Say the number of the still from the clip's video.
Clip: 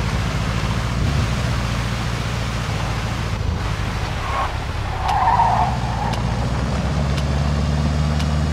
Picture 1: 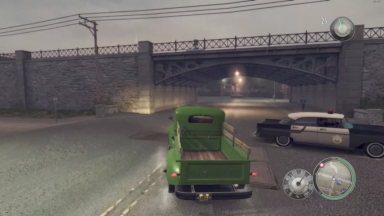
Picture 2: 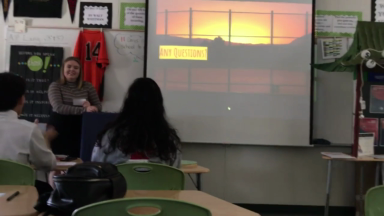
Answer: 1